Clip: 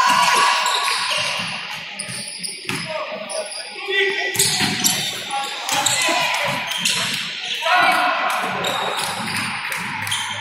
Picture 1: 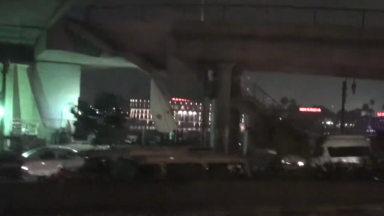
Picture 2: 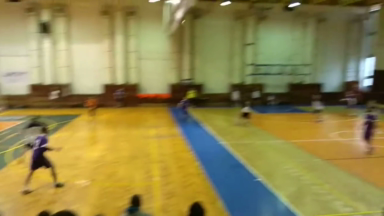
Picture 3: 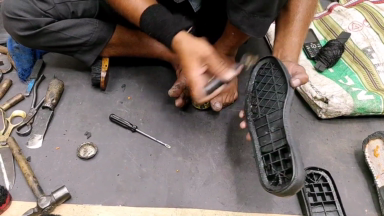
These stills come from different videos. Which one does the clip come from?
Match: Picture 2